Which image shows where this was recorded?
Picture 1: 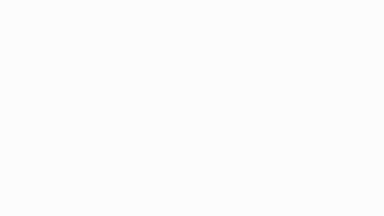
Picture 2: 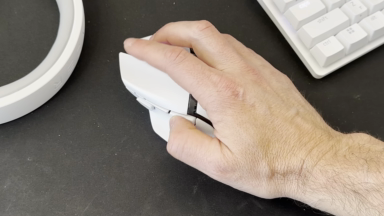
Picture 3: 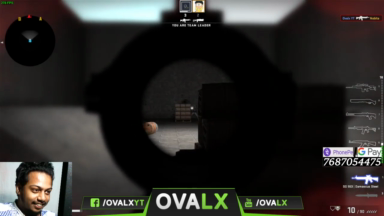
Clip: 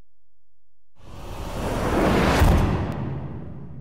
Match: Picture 1